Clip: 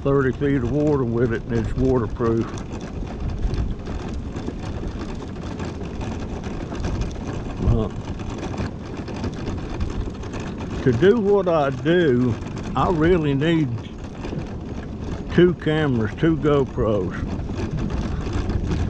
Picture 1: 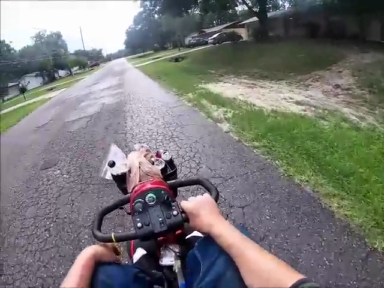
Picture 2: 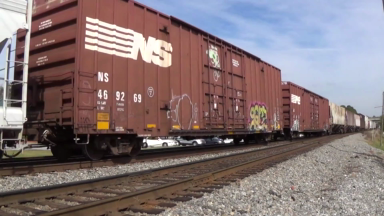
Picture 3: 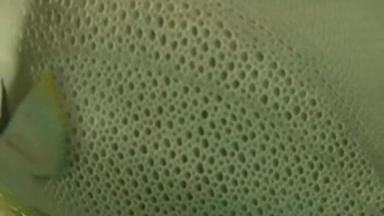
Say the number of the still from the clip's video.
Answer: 1